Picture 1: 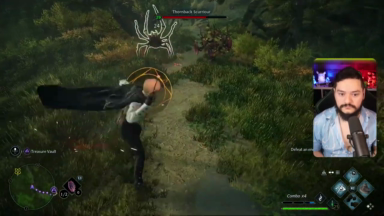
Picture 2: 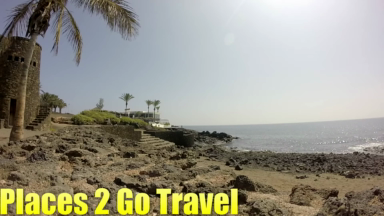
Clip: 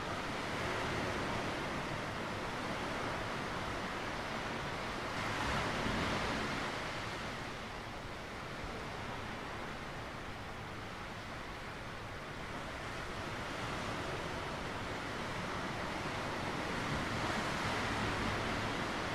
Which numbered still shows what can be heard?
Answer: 2